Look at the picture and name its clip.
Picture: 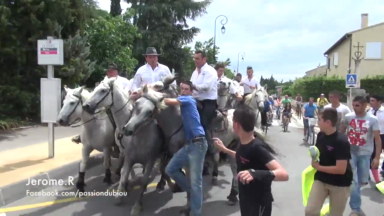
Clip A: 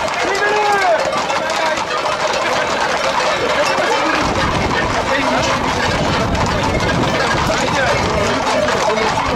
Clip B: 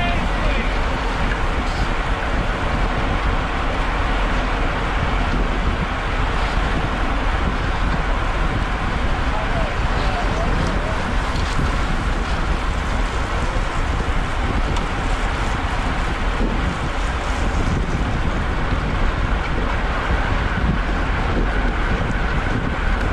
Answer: A